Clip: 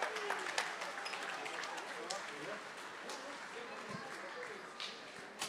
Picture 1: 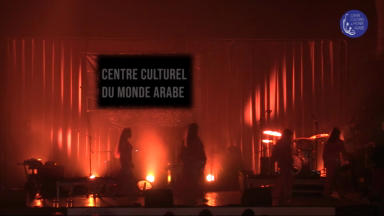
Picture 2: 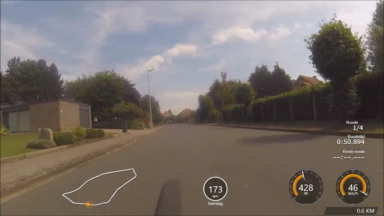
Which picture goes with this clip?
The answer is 1